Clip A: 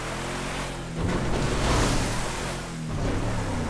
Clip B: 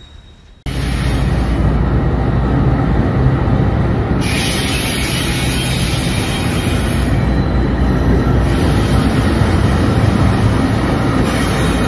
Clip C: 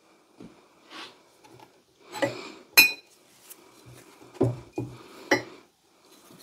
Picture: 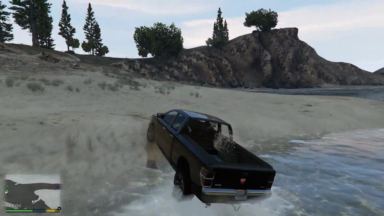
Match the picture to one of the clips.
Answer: A